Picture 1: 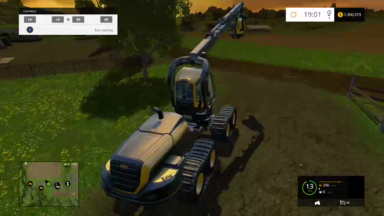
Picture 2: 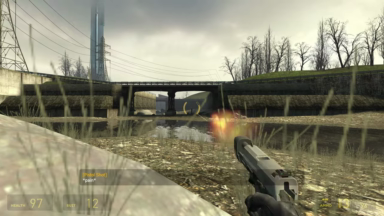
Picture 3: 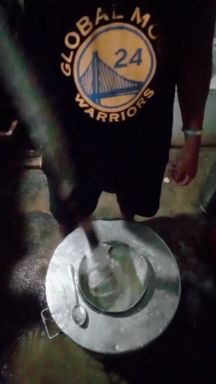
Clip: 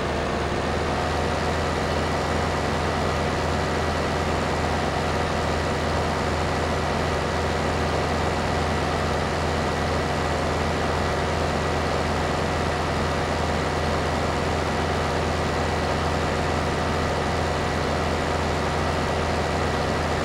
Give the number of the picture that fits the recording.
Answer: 1